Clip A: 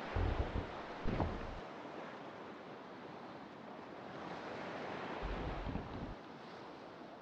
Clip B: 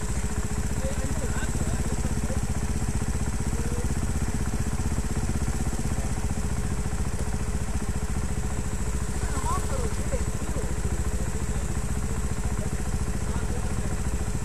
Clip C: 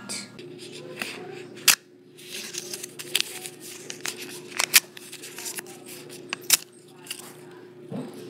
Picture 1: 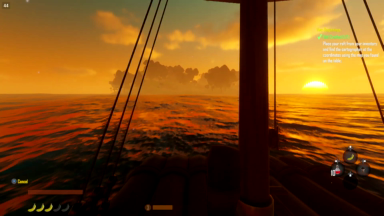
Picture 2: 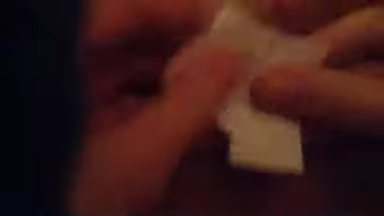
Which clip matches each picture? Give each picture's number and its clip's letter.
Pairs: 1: A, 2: C